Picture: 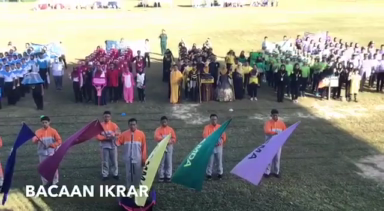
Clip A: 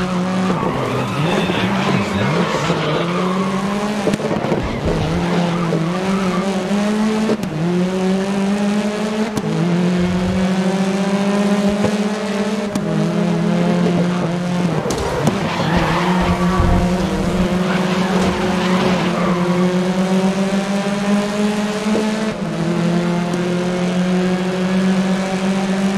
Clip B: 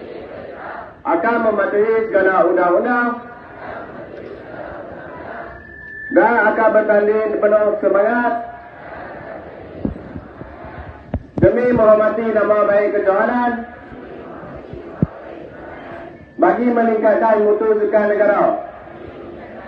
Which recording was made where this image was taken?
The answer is B